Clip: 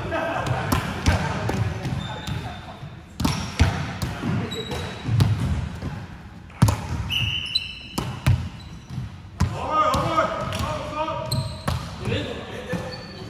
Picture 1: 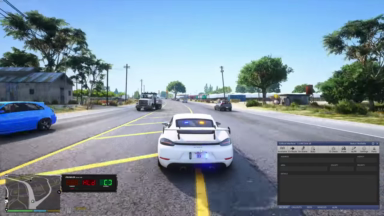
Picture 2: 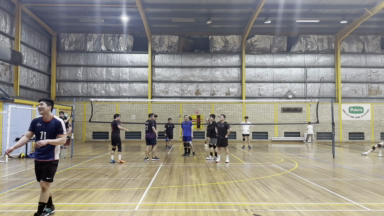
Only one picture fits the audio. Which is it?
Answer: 2